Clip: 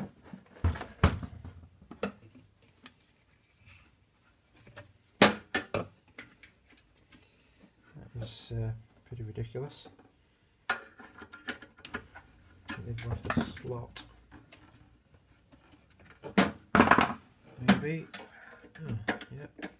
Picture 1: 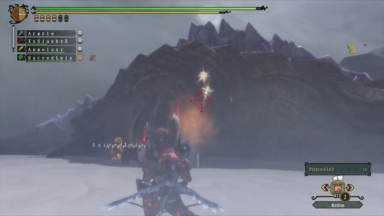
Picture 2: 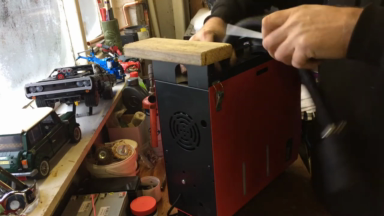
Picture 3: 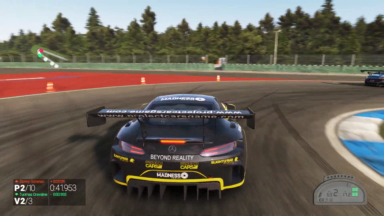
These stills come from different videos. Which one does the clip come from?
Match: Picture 2